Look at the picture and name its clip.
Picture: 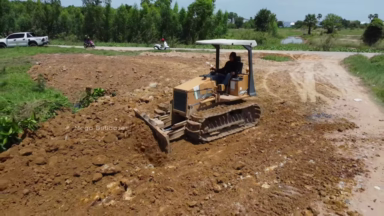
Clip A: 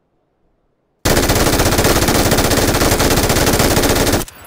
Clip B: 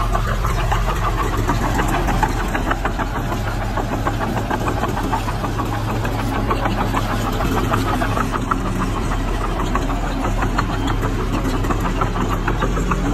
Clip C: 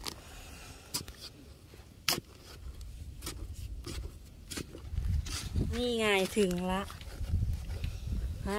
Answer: B